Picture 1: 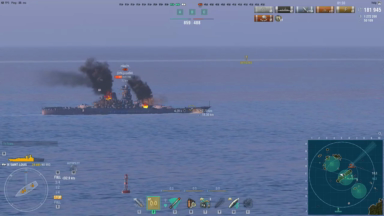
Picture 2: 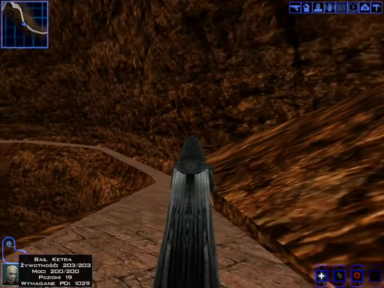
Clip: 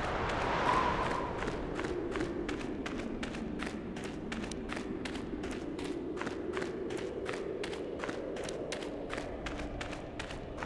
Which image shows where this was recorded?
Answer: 2